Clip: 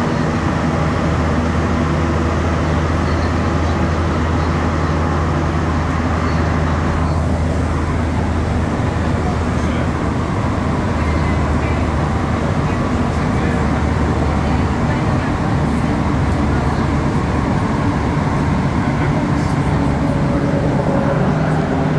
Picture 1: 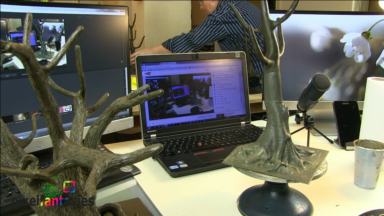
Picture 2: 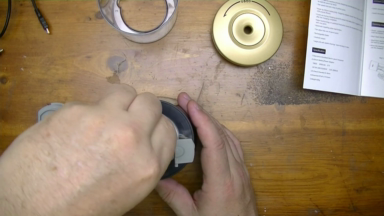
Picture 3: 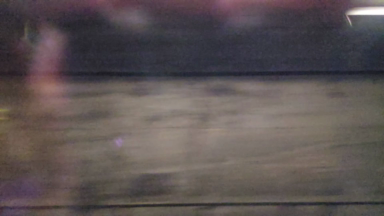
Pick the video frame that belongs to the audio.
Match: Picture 3